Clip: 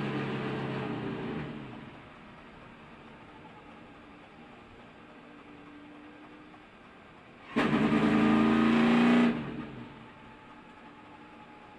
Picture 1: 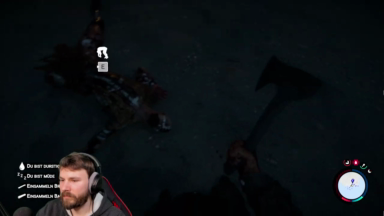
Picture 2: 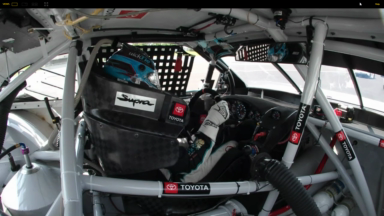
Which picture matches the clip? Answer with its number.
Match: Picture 2